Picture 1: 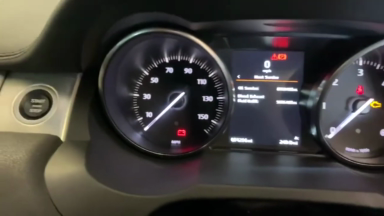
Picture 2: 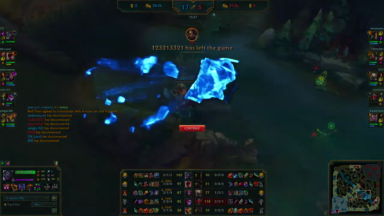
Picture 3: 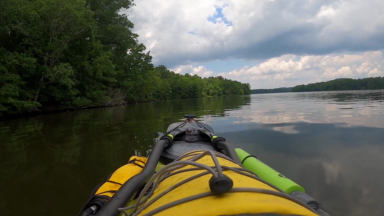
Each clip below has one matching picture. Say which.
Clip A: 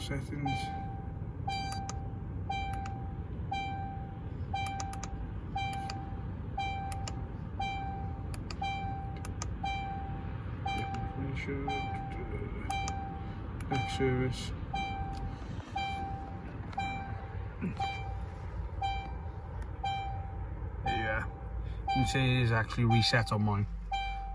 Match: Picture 1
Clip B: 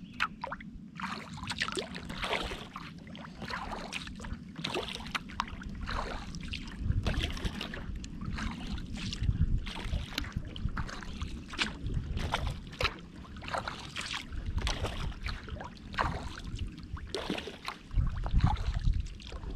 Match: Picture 3